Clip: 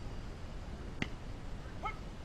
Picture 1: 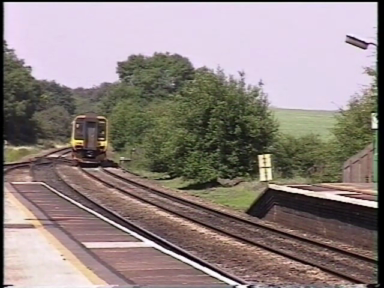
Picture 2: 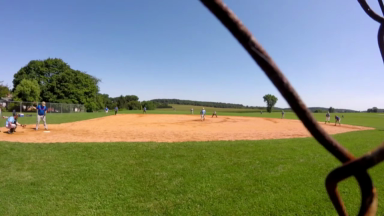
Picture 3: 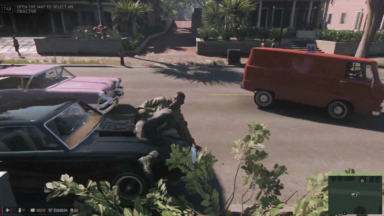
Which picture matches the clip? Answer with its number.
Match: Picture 2